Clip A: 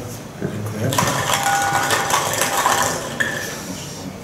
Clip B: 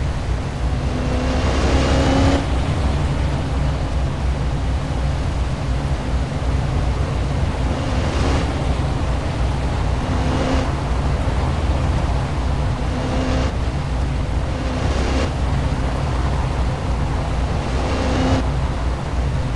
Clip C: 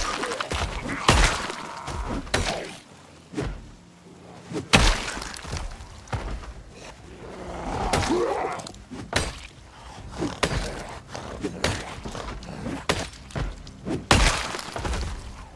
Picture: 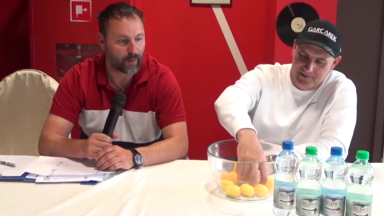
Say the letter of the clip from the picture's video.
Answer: A